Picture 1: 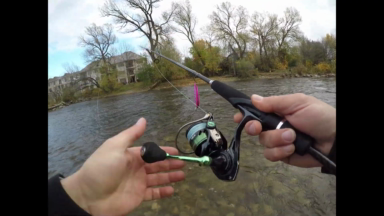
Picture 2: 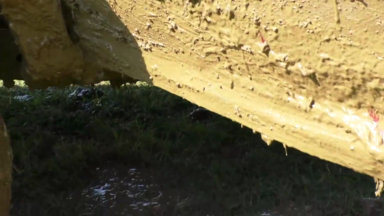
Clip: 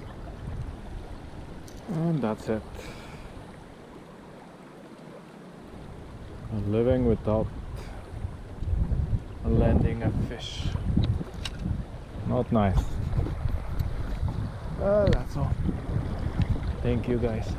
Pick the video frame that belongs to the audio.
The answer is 1